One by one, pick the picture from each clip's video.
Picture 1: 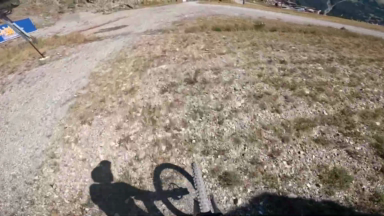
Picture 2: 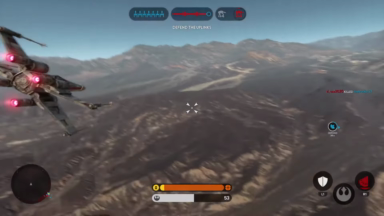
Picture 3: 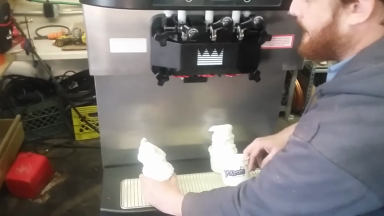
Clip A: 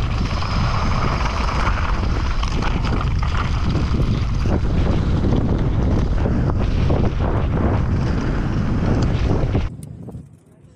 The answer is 1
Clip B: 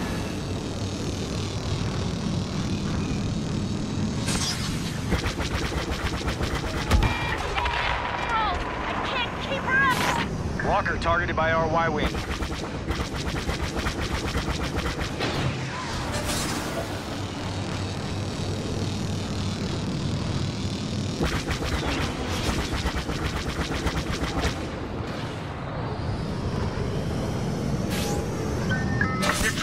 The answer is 2